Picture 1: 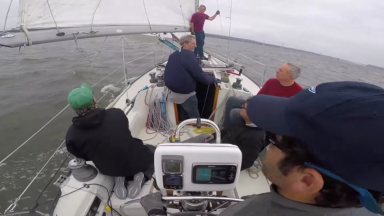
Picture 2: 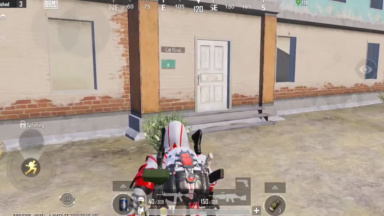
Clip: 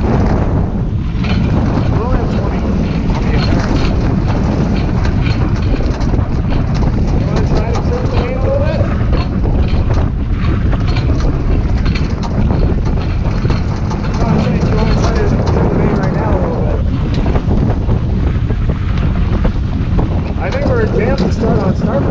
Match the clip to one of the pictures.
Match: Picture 1